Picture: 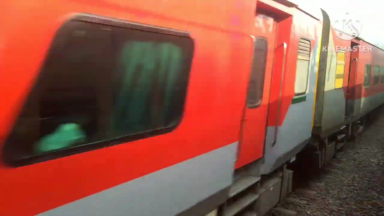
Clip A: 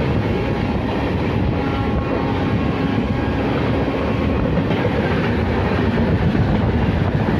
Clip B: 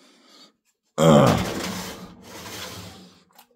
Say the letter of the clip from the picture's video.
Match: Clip A